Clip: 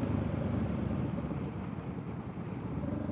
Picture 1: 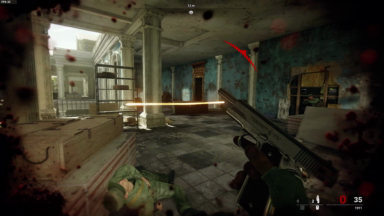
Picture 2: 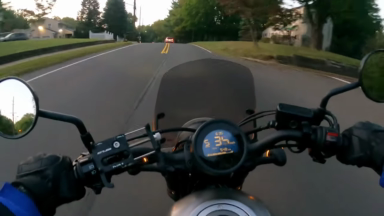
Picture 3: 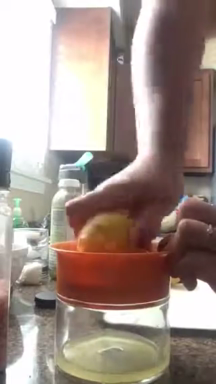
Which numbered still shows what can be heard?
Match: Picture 2